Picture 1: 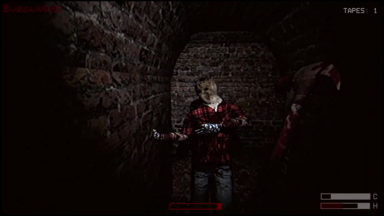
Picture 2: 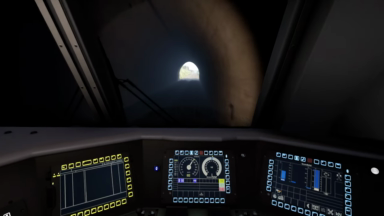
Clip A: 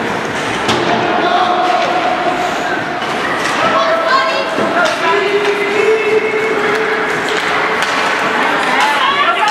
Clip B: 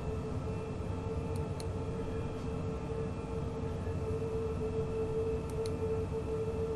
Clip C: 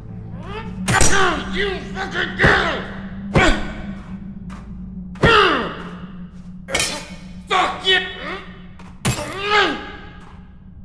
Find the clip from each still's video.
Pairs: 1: C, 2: B